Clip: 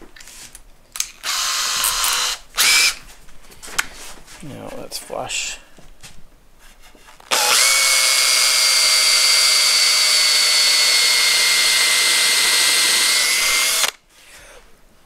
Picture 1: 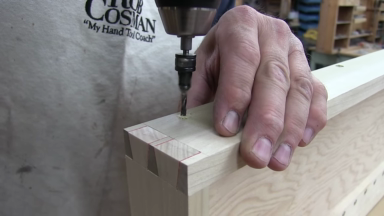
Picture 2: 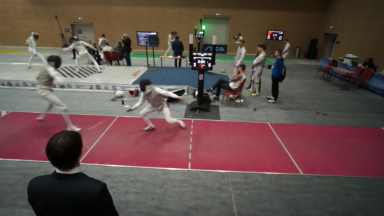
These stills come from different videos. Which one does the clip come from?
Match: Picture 1